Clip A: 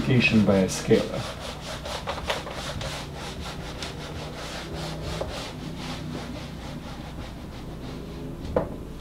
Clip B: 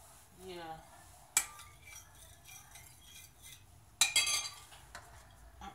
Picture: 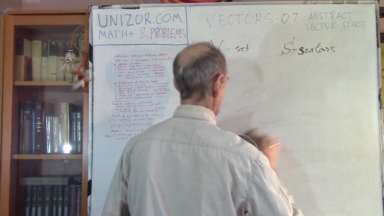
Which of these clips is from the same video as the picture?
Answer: A